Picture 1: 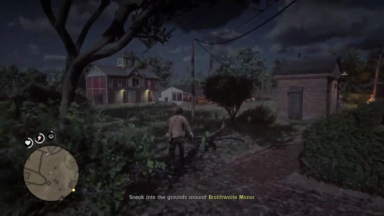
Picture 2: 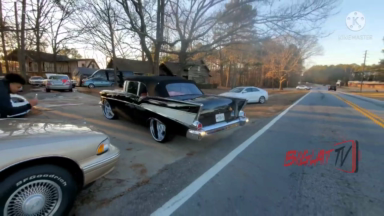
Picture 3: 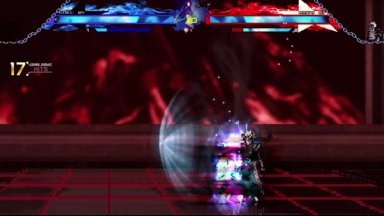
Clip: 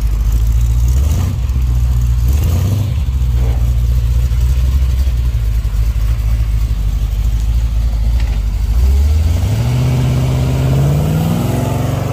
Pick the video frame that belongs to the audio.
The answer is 2